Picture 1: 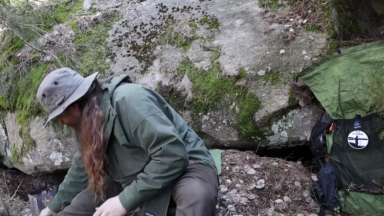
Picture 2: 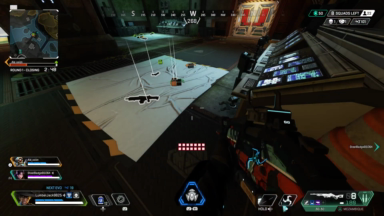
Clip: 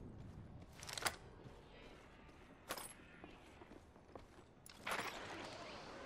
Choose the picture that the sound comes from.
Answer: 2